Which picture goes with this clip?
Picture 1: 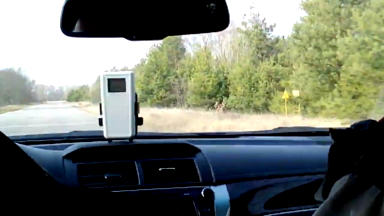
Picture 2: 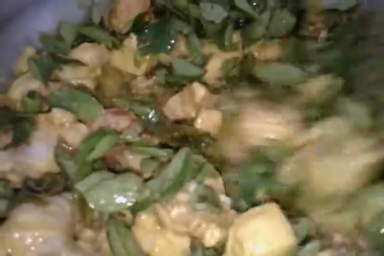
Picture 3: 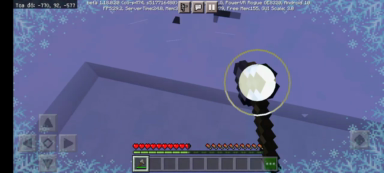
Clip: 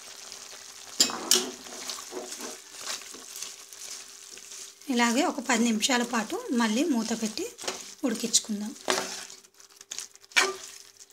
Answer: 2